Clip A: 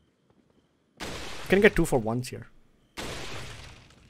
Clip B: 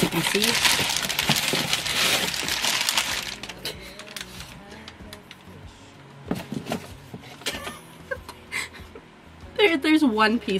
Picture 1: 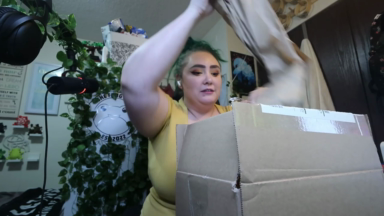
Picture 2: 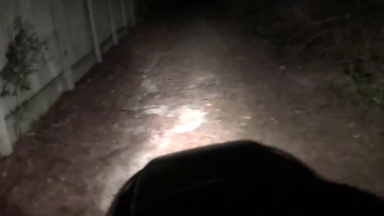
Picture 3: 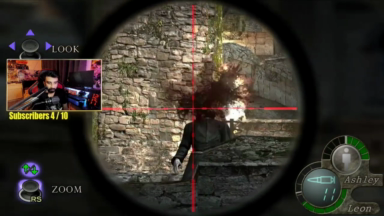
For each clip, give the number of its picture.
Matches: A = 3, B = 1